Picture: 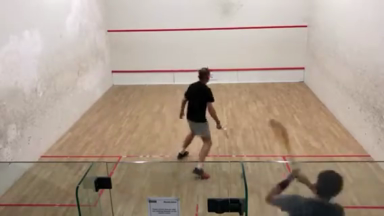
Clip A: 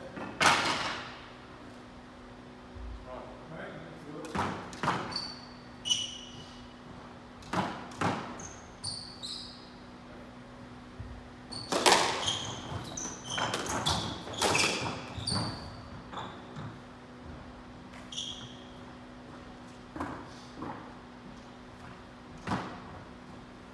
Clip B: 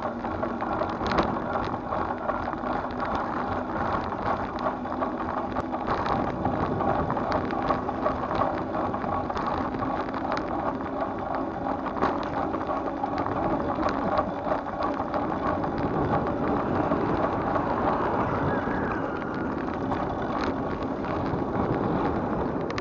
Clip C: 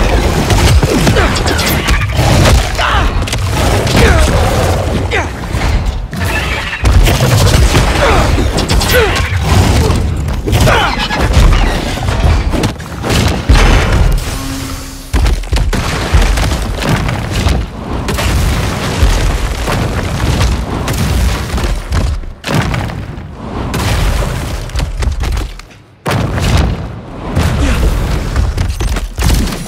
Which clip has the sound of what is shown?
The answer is A